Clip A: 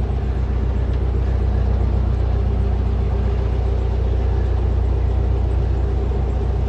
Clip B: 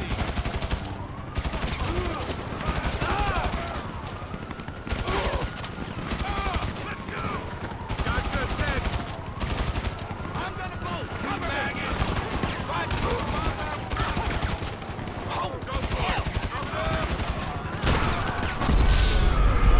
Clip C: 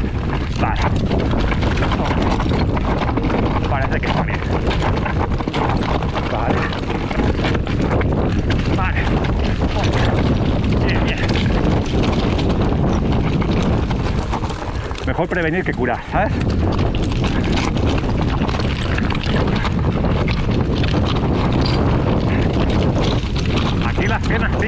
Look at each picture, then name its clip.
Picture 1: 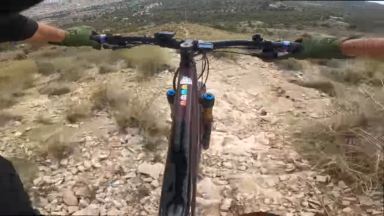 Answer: C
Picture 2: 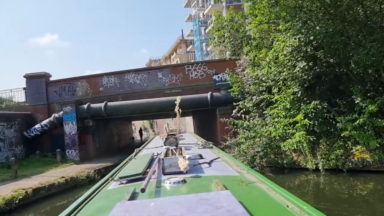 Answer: A